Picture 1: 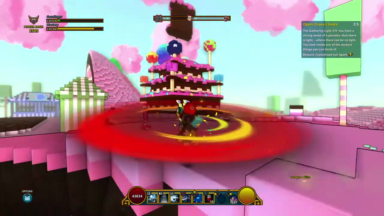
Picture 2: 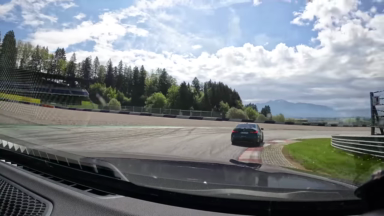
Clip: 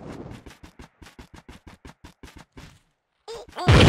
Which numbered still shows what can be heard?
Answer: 1